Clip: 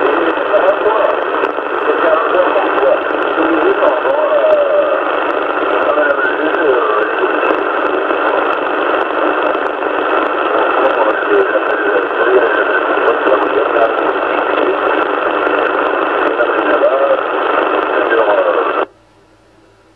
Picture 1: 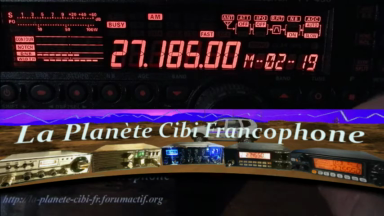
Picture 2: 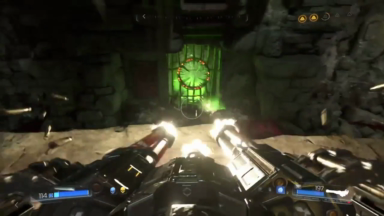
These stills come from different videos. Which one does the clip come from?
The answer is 1